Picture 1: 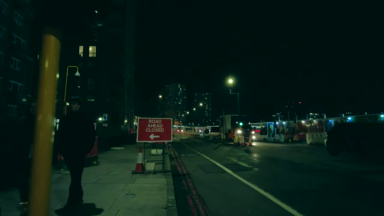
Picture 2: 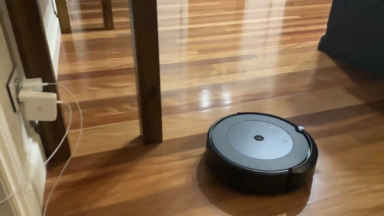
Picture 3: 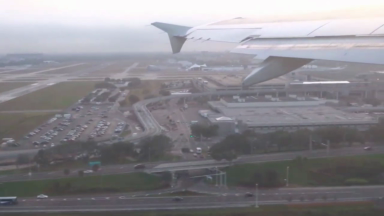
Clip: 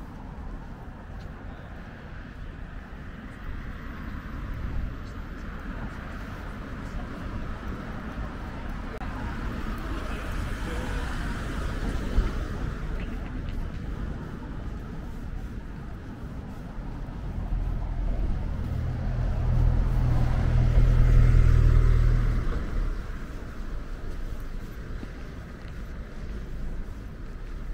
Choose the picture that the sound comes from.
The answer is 1